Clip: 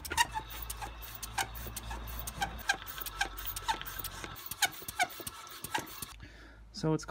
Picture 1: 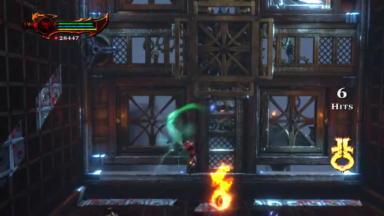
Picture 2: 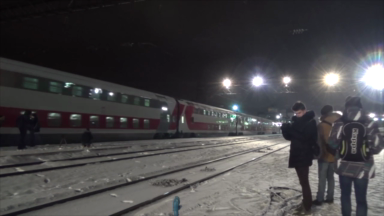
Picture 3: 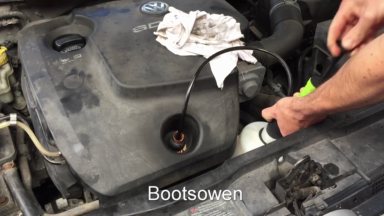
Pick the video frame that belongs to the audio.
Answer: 3